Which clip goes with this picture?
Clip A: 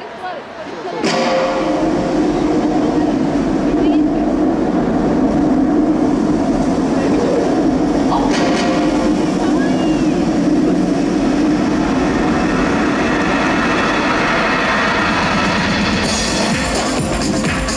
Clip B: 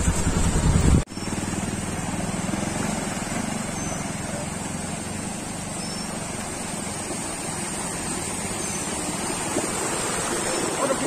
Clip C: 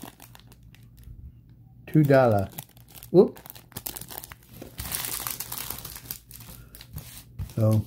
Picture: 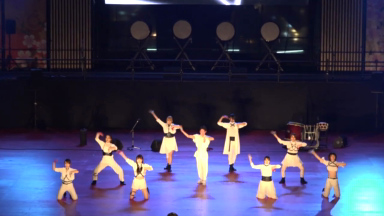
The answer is A